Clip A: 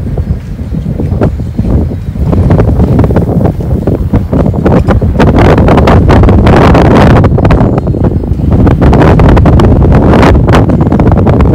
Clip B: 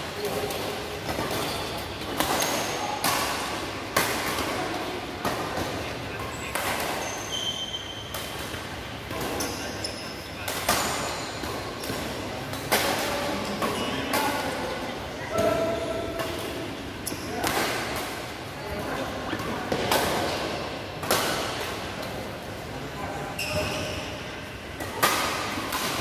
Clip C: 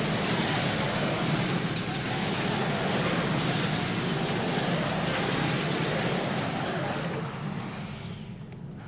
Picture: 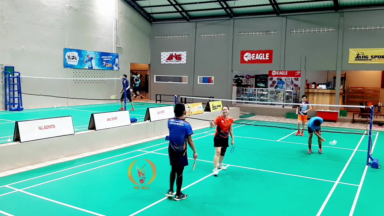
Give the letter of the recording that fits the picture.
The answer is B